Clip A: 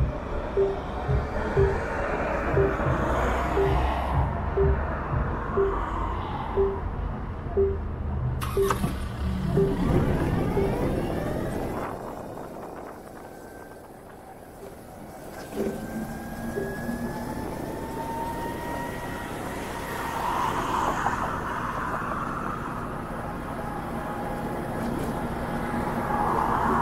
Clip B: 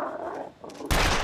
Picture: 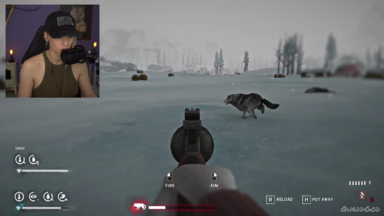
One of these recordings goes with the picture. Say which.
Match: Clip B